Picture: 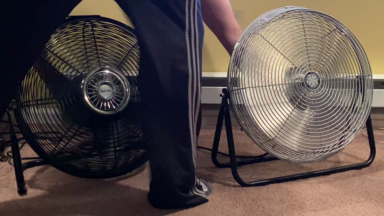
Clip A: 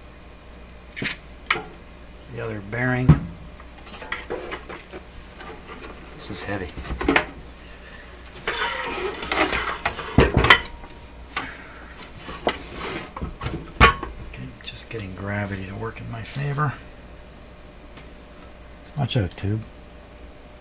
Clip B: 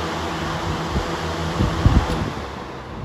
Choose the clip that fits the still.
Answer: B